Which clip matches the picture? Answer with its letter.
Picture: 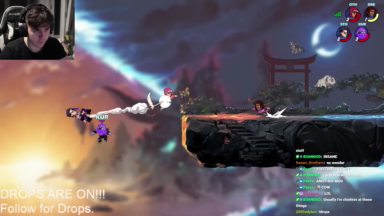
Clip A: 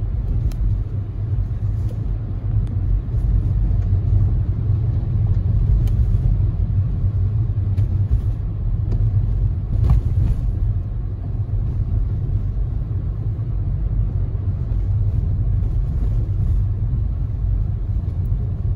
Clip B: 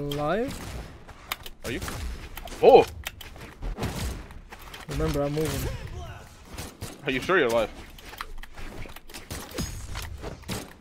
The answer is B